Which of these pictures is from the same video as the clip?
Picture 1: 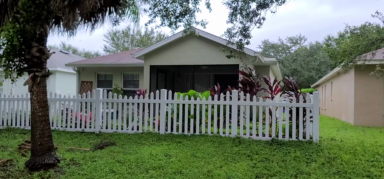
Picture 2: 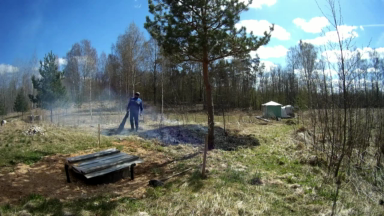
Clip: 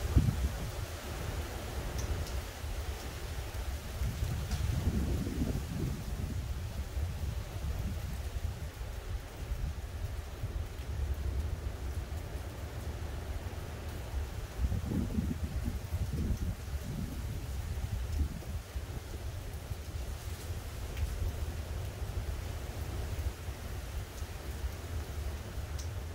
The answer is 1